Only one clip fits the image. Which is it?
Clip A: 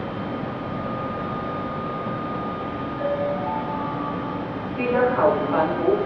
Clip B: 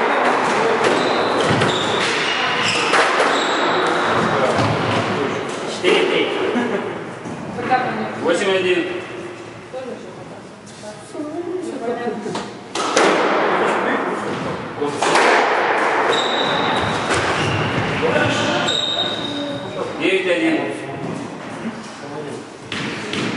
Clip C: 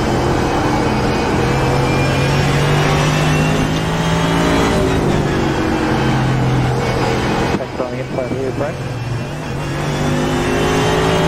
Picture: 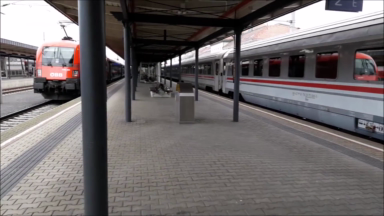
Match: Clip A